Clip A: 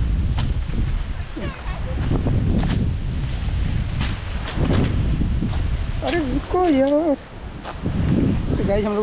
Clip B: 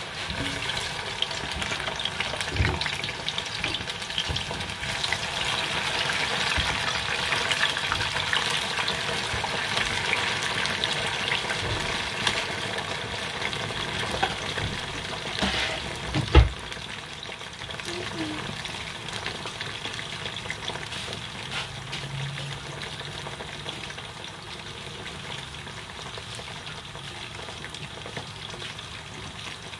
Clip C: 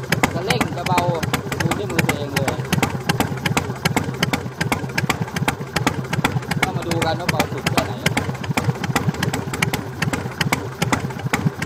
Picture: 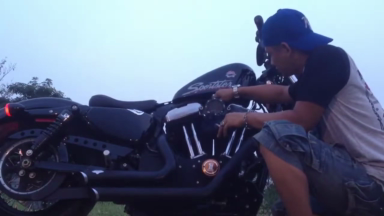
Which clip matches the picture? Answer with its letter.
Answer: C